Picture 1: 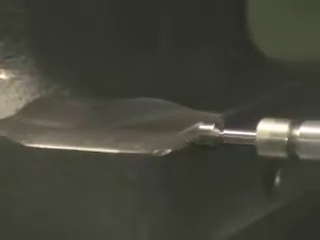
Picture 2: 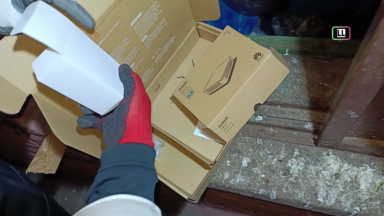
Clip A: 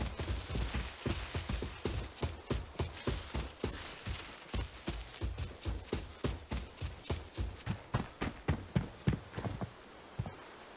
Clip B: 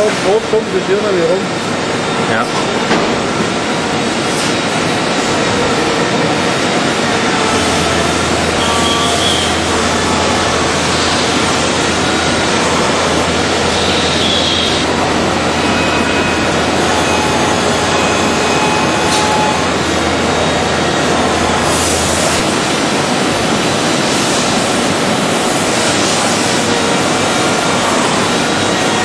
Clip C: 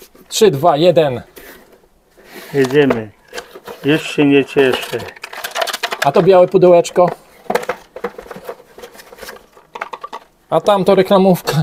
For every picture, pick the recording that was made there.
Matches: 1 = B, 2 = C